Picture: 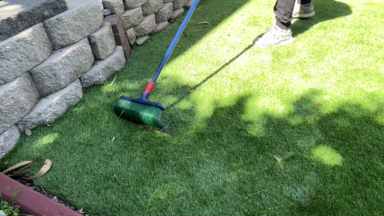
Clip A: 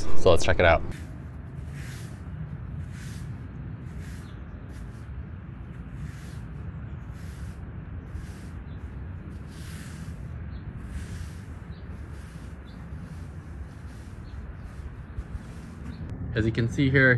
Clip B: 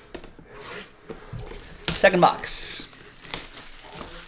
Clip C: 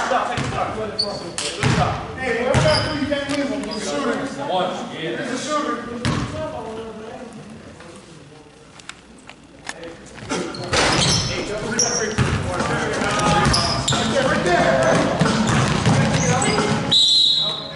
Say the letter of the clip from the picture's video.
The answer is A